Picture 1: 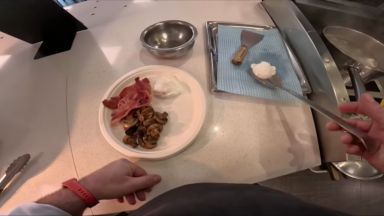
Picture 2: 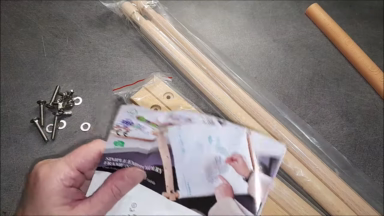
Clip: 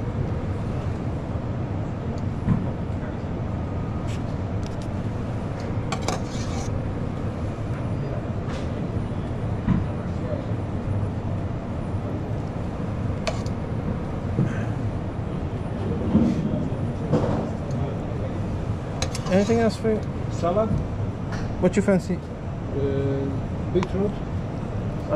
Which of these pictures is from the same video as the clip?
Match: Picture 1